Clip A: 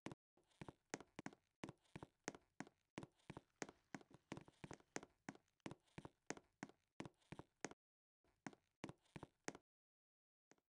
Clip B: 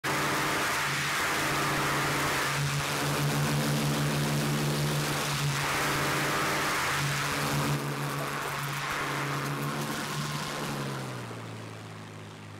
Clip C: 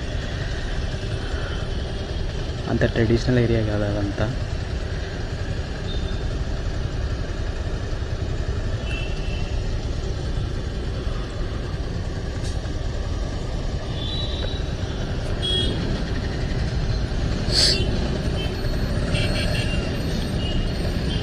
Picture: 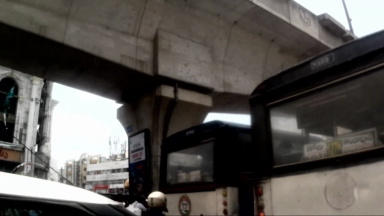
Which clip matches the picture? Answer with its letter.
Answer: C